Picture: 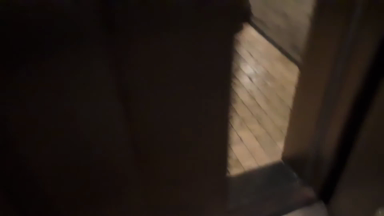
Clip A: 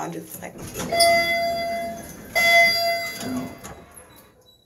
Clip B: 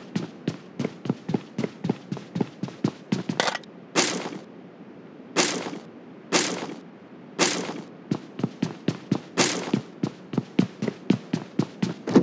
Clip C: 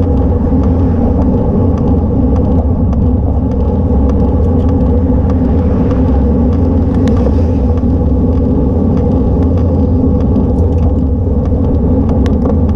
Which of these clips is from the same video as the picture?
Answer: A